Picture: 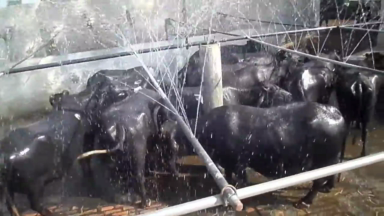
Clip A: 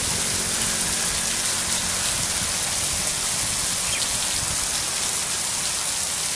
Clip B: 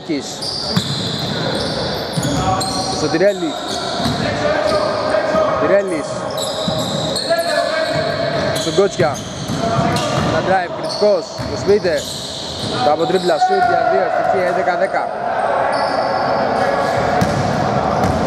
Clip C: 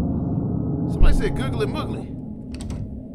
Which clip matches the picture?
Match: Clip A